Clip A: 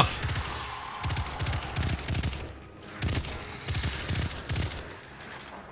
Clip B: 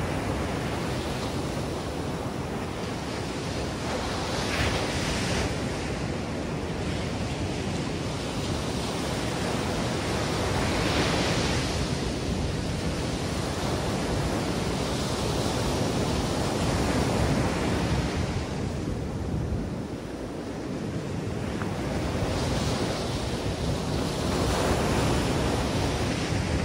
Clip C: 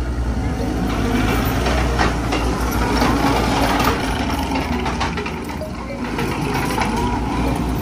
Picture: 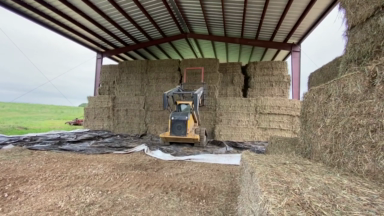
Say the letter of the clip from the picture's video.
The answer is C